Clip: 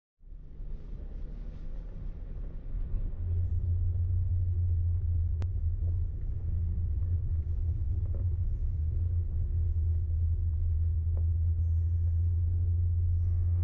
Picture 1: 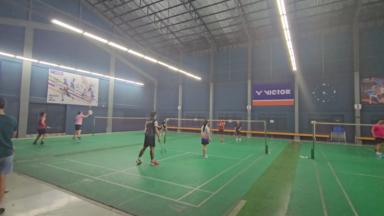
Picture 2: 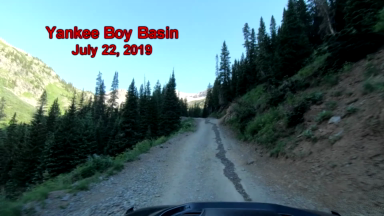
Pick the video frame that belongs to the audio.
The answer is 2